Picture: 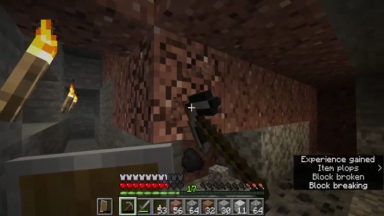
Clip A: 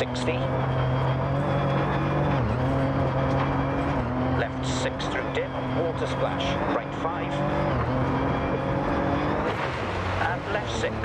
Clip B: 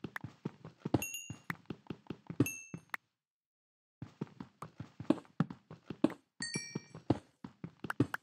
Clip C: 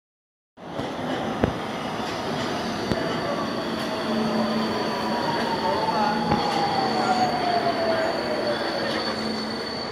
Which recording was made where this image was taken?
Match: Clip B